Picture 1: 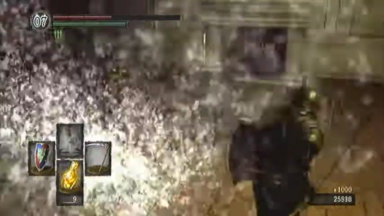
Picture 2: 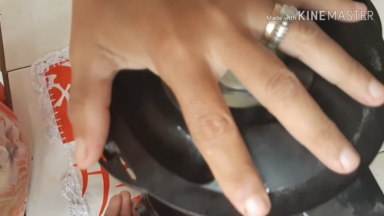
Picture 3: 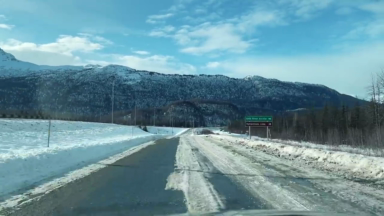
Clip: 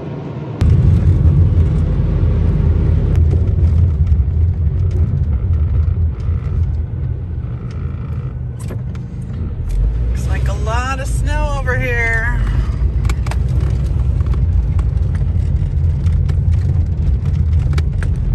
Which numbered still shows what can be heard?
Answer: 3